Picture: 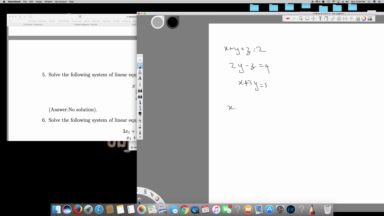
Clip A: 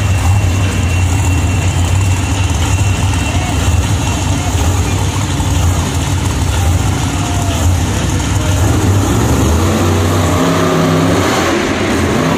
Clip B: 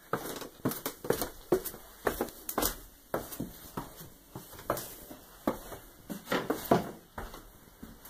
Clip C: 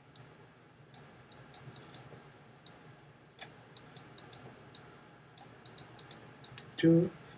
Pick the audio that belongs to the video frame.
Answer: C